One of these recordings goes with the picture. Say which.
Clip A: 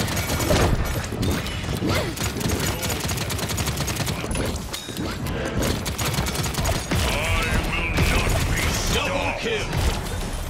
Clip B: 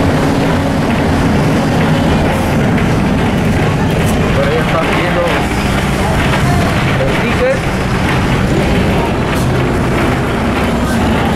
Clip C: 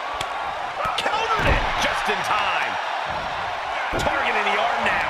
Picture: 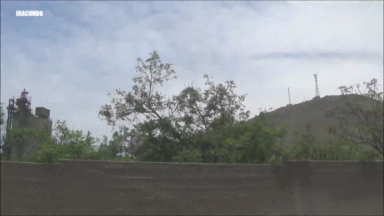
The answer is B